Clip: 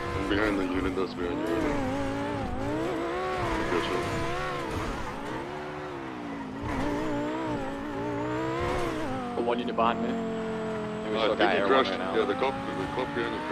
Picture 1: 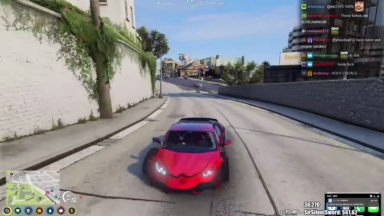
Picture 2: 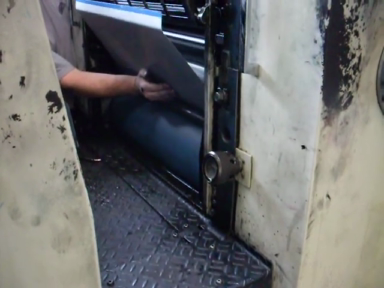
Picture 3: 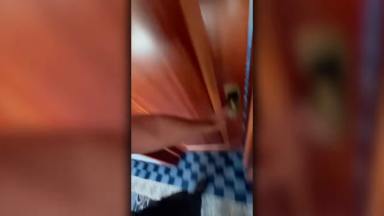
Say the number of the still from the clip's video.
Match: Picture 1